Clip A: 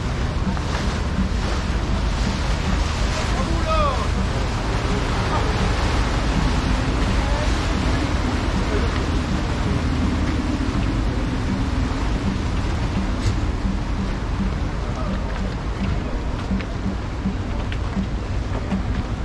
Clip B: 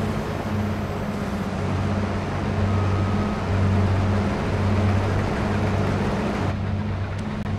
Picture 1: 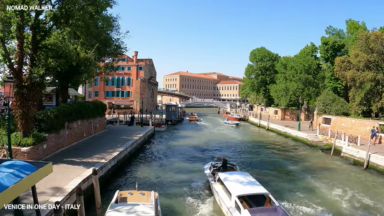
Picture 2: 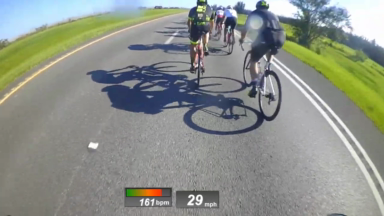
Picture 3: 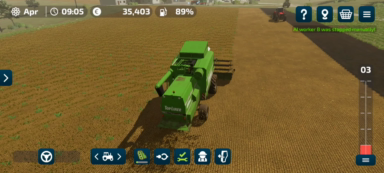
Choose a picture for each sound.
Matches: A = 1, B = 3